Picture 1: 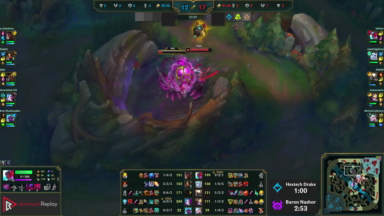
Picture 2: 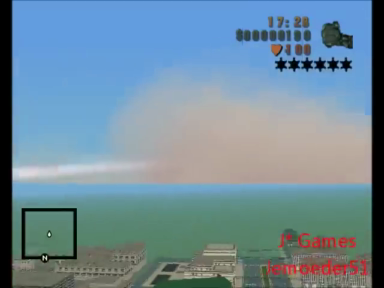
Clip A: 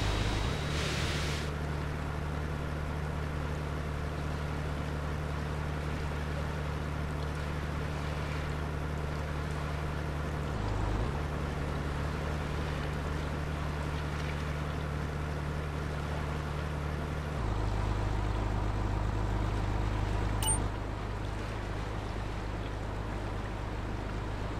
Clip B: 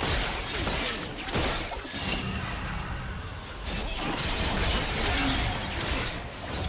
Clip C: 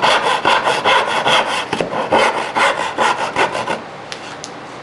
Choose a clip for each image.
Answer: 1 B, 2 A